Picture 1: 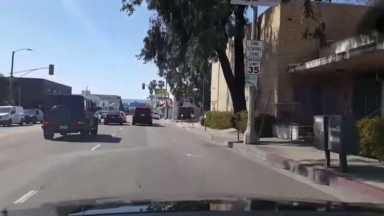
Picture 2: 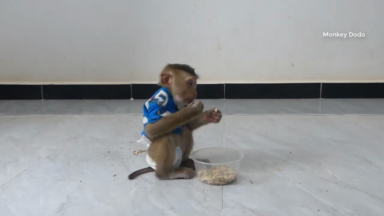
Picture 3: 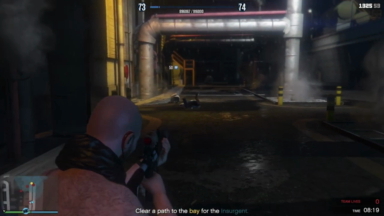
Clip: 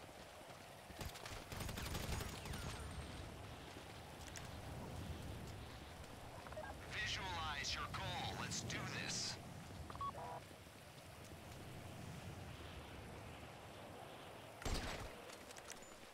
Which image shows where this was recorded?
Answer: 3